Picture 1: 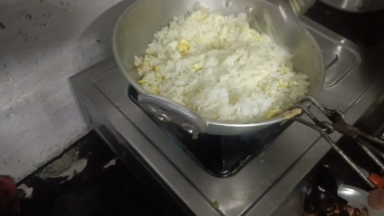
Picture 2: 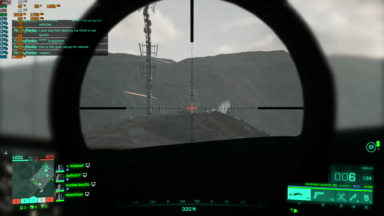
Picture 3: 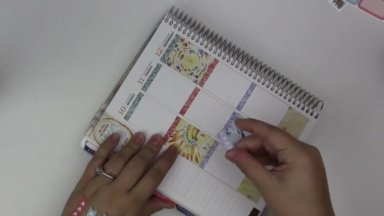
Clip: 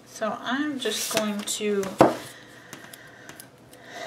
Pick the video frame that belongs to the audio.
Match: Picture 3